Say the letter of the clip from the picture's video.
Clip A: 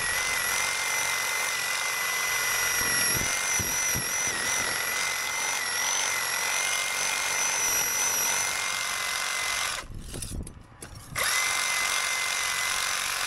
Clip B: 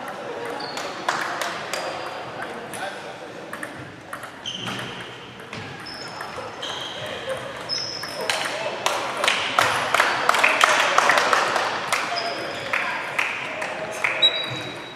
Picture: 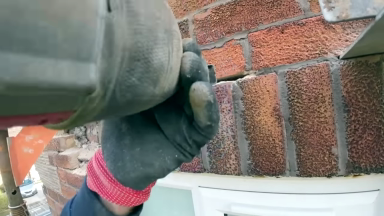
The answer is A